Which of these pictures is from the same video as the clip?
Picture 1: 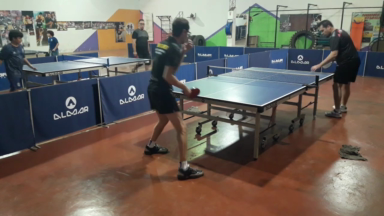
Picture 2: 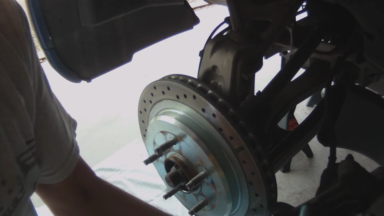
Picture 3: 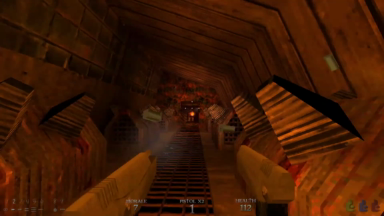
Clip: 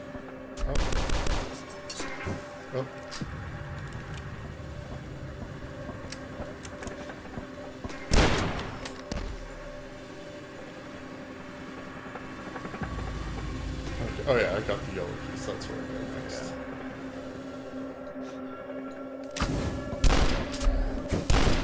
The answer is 3